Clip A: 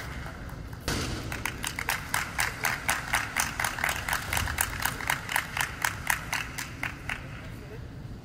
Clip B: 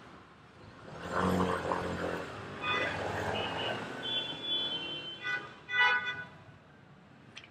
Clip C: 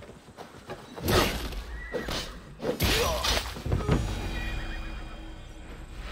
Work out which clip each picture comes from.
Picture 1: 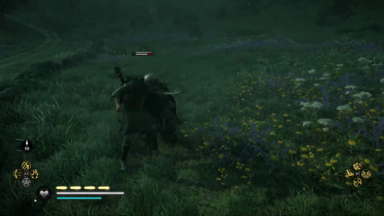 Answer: C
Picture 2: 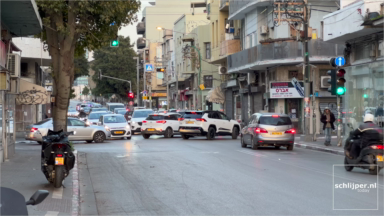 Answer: B